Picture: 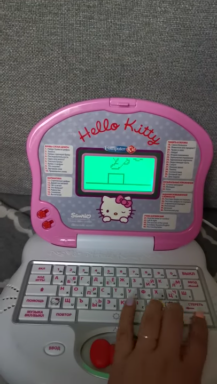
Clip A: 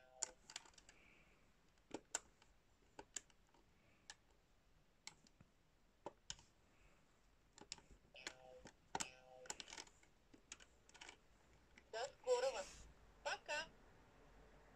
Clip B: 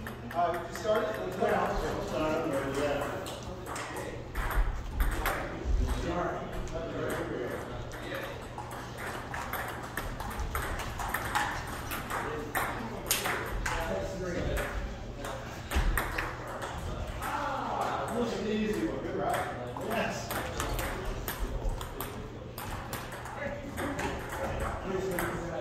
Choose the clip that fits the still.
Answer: A